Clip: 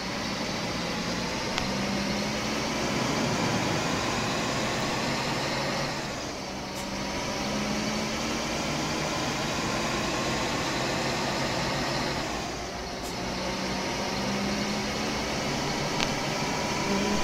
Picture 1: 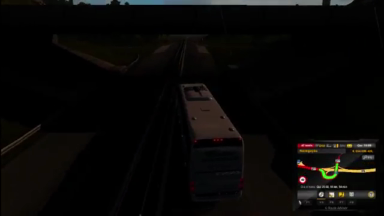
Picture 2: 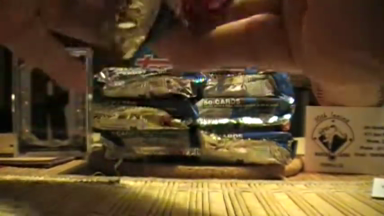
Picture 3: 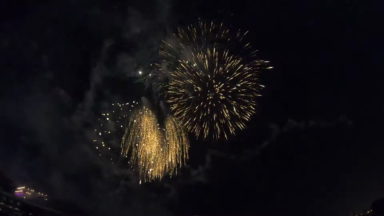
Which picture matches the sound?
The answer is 1